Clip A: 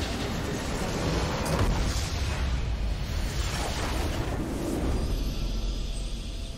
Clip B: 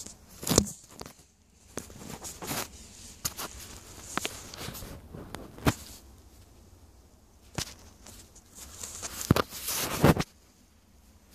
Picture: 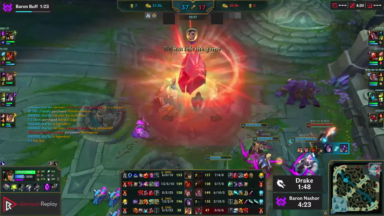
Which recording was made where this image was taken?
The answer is A